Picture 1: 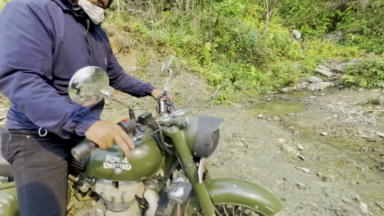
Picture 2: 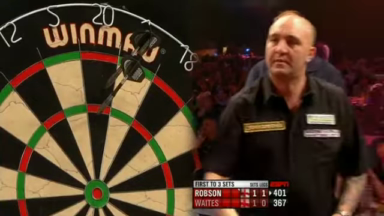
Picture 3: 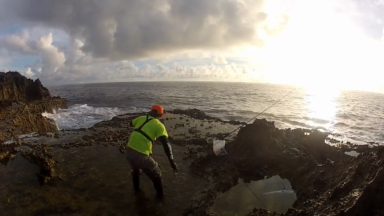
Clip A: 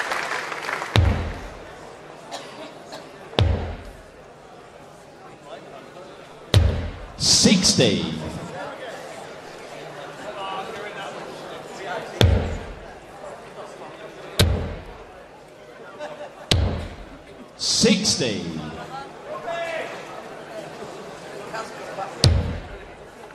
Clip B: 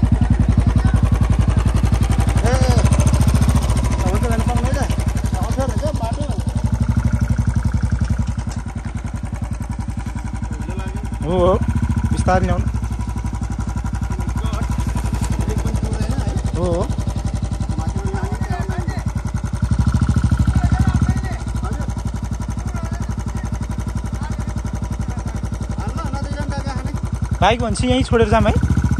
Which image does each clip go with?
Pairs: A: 2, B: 1